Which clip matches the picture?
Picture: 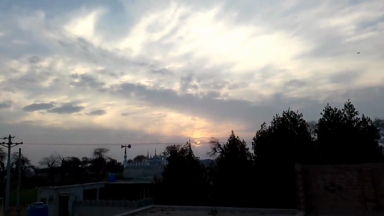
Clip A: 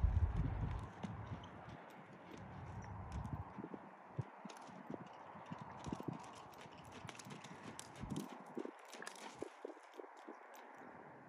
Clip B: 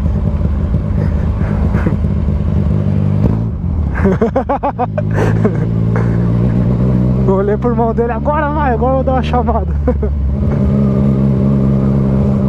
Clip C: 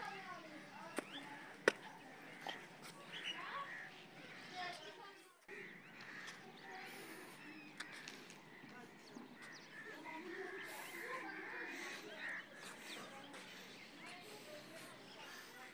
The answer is C